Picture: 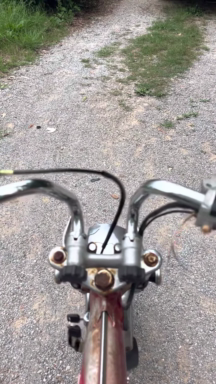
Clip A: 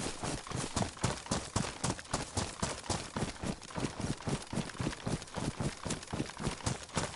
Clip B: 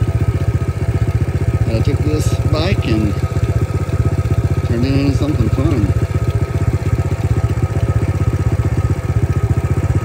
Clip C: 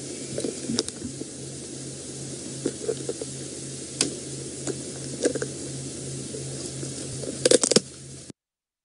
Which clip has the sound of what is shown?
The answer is B